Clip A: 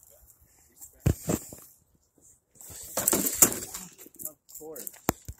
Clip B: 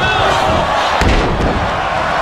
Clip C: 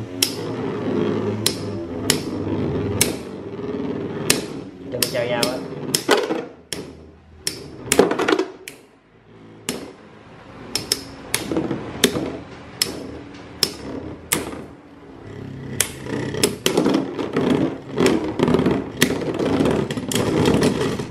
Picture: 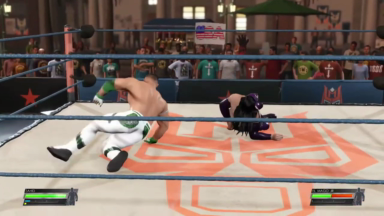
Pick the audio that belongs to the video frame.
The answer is B